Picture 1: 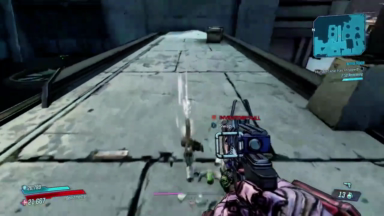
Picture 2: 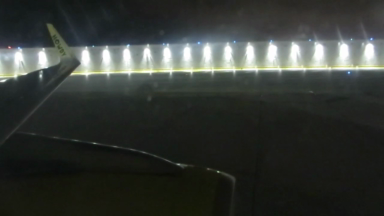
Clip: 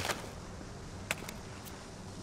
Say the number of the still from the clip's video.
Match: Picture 1